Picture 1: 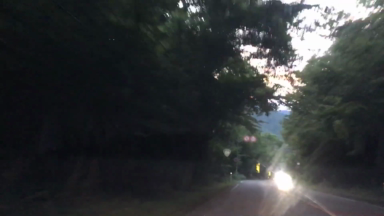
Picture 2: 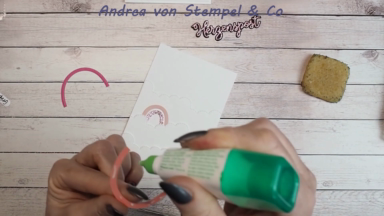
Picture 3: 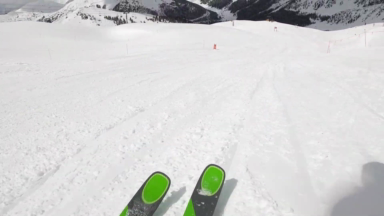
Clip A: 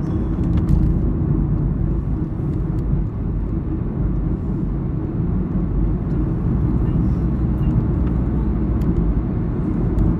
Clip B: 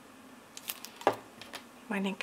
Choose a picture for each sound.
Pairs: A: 1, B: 2